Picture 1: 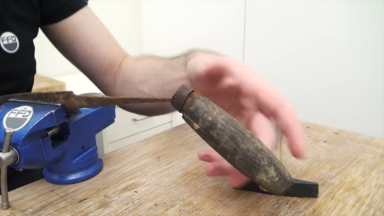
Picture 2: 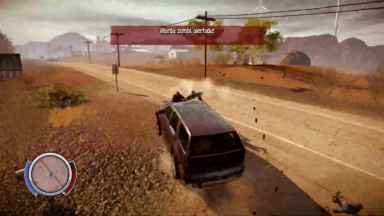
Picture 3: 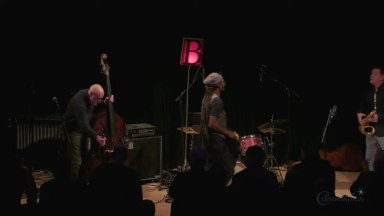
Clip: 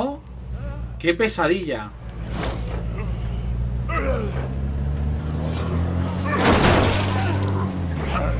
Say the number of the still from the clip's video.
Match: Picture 2